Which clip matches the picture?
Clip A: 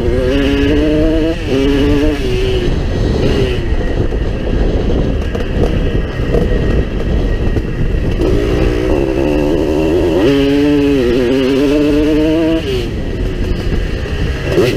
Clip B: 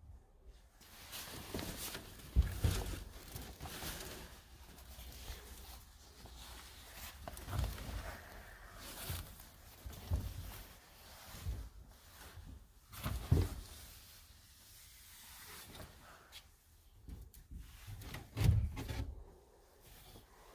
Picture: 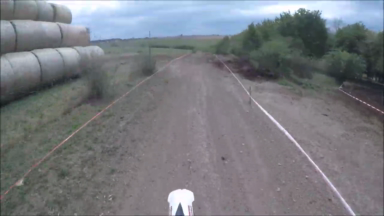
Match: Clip A